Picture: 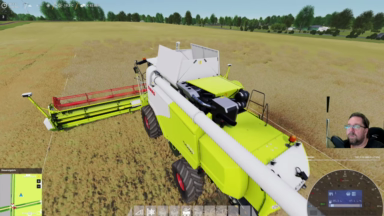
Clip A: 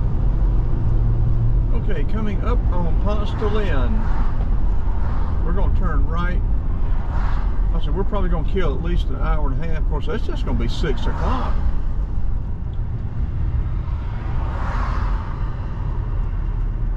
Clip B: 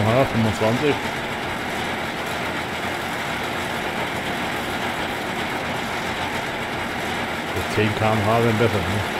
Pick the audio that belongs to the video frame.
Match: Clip B